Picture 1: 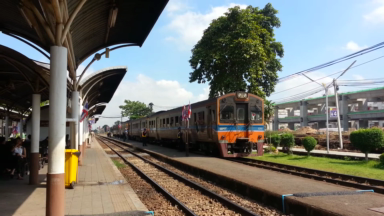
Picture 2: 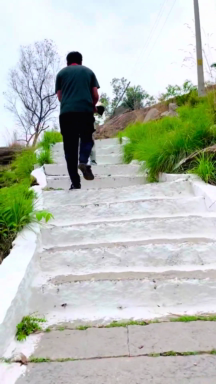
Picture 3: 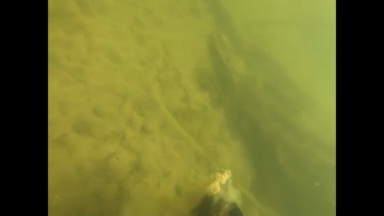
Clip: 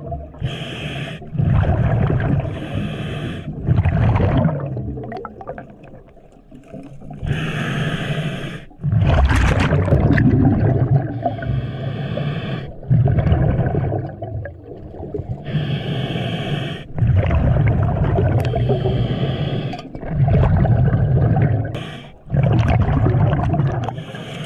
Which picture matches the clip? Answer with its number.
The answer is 3